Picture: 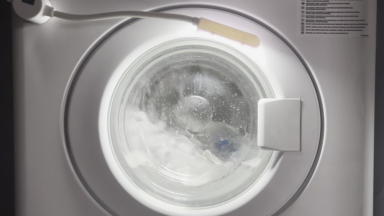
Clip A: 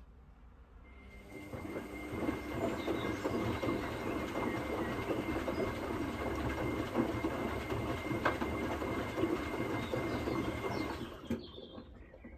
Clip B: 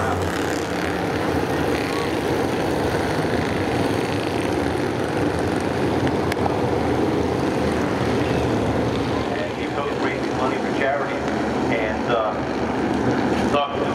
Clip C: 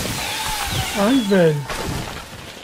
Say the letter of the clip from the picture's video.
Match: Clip A